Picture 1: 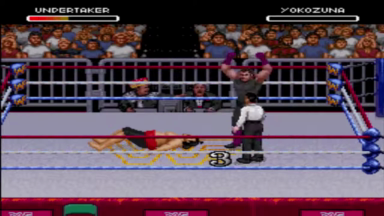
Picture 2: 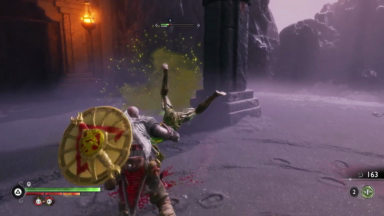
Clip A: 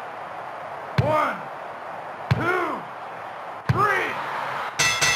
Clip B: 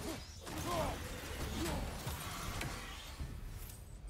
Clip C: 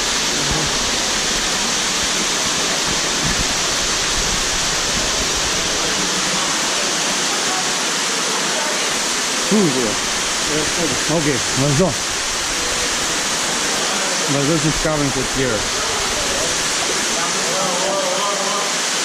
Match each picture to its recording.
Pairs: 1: A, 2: B